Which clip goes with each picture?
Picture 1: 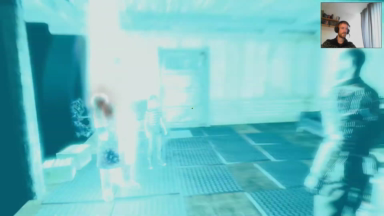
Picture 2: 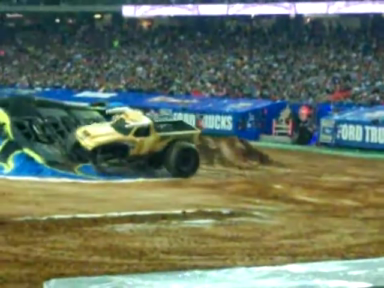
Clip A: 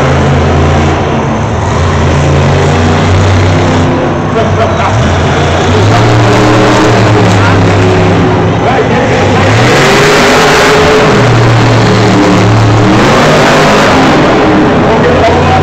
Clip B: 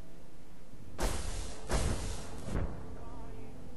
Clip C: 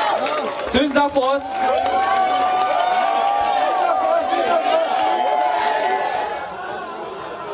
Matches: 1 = B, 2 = A